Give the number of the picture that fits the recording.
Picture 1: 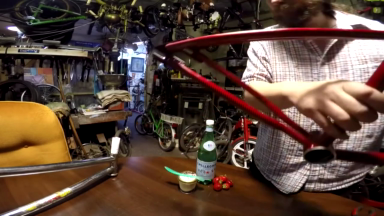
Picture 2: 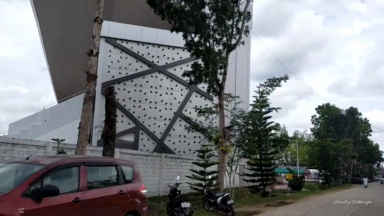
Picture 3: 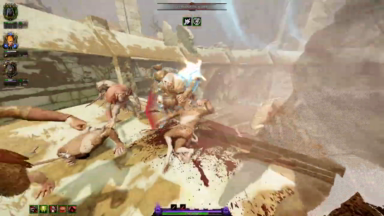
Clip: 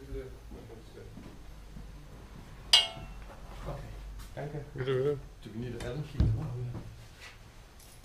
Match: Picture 1